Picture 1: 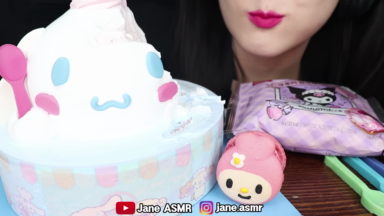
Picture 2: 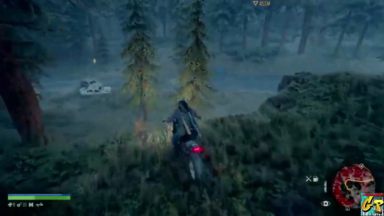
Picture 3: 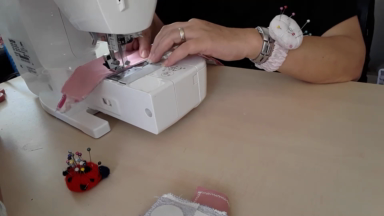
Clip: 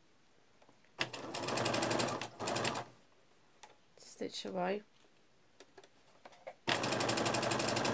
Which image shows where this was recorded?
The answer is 3